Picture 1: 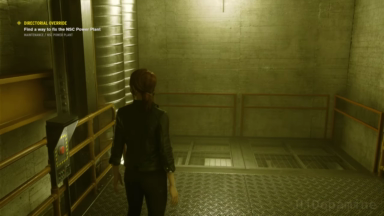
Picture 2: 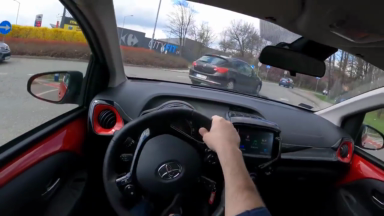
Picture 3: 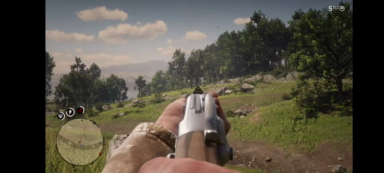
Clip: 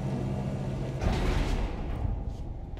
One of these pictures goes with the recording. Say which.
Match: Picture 1